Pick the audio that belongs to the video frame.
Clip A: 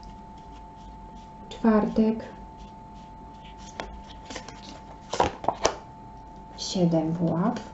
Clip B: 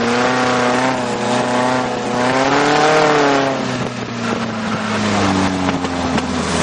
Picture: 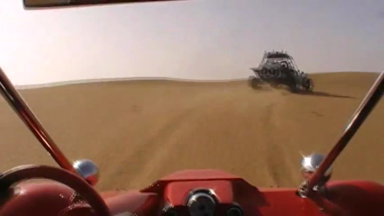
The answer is B